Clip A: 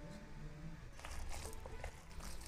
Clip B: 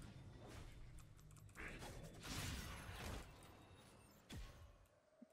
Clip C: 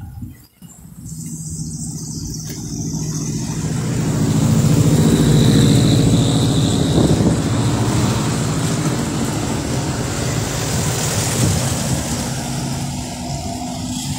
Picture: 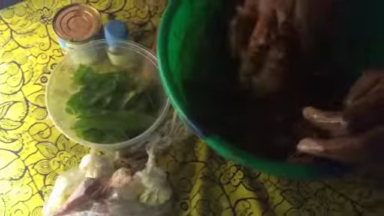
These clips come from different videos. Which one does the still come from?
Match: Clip A